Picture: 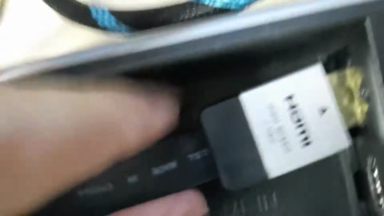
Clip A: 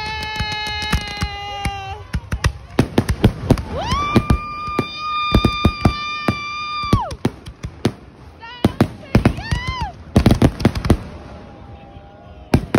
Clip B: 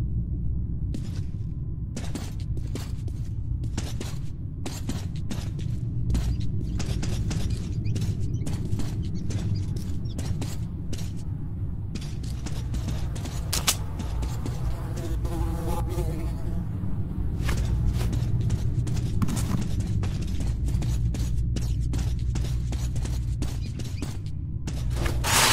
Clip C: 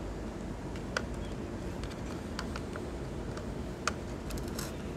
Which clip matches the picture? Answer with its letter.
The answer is C